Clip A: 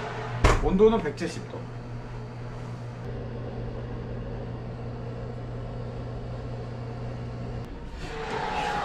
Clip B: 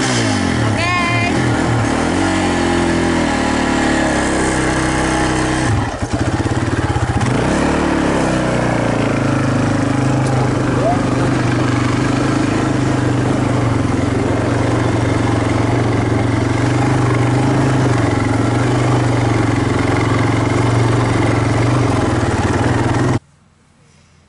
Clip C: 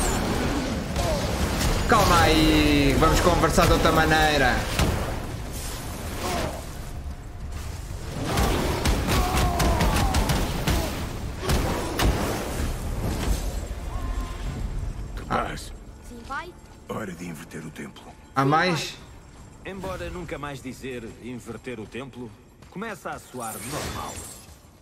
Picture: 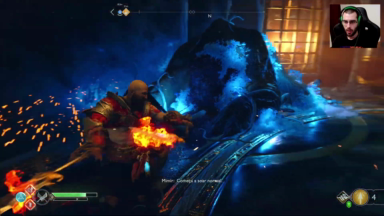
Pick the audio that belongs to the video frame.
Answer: C